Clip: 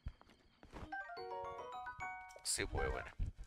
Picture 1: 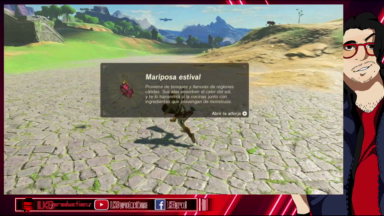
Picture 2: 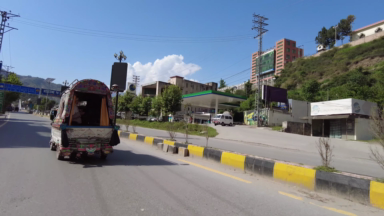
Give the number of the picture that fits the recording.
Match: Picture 1